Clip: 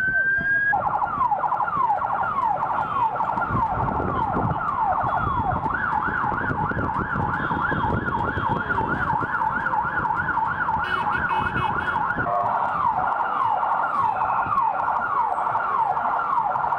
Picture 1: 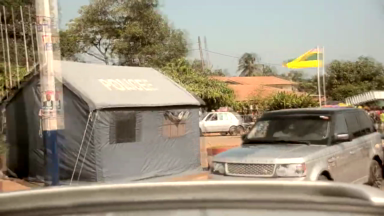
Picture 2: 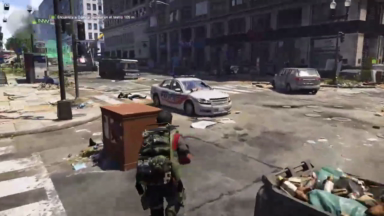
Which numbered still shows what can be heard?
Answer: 1